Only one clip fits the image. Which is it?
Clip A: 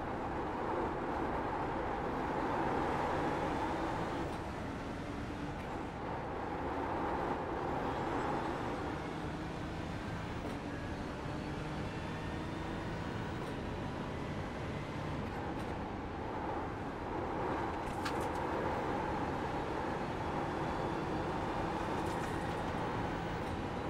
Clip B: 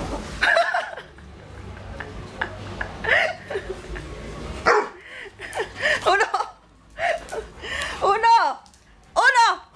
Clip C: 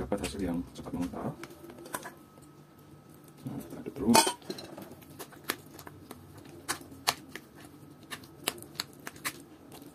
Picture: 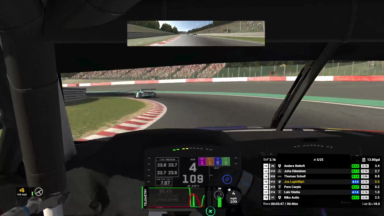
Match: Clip A